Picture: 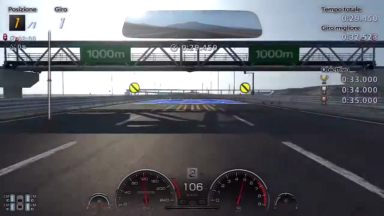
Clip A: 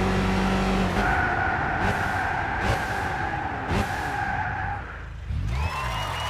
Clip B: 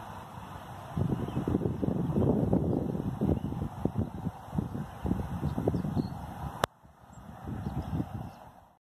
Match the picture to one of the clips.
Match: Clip A